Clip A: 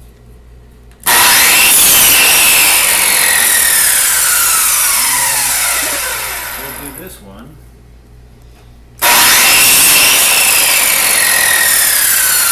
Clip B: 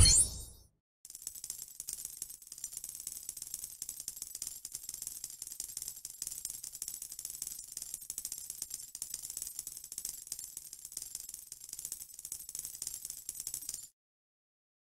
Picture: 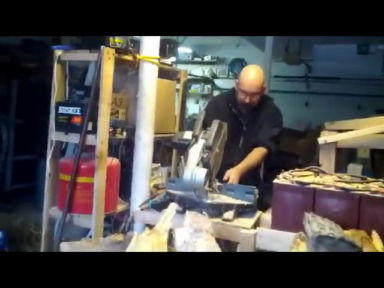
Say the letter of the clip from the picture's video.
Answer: A